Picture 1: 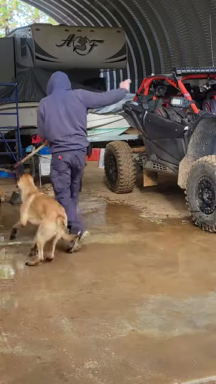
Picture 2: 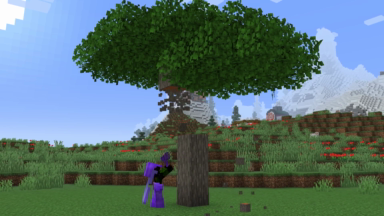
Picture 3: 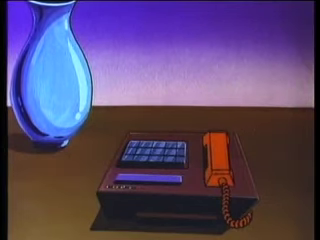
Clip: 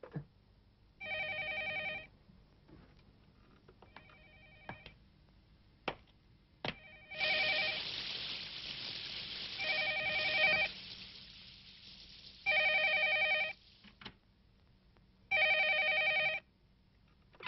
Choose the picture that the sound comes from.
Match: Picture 3